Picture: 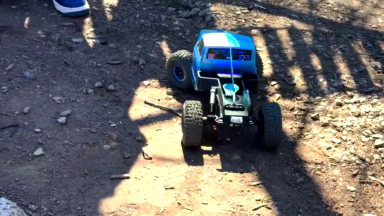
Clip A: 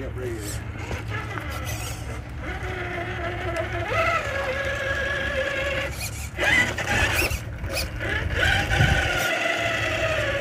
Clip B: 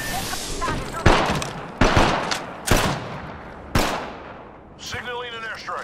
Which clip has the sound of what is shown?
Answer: A